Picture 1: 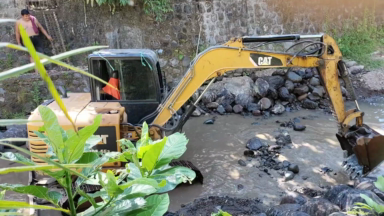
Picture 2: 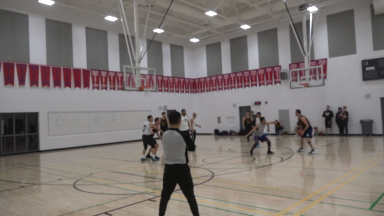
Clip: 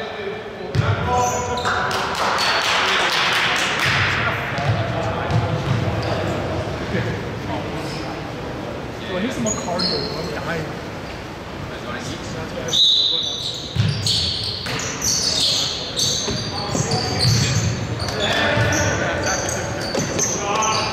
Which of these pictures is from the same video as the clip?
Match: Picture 2